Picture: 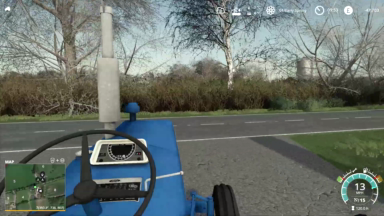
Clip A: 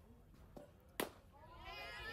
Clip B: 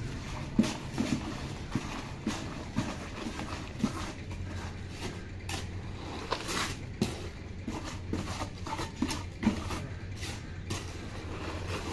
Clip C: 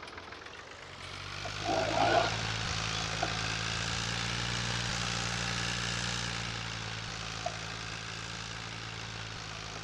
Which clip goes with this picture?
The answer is C